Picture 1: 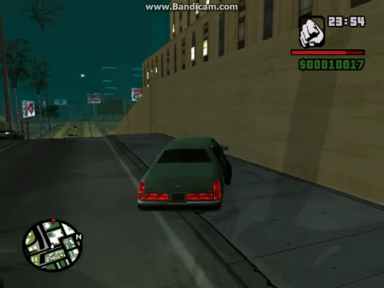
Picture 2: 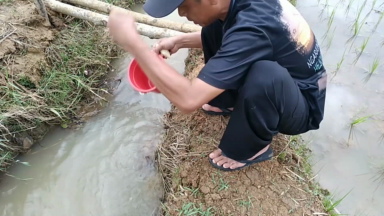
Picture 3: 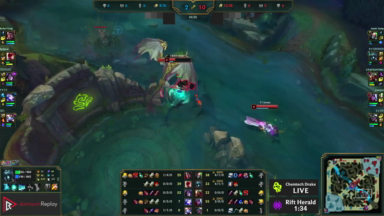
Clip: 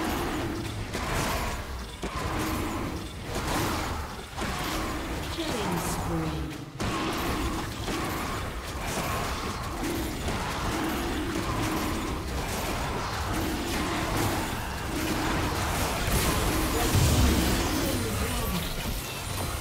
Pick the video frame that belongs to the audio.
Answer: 3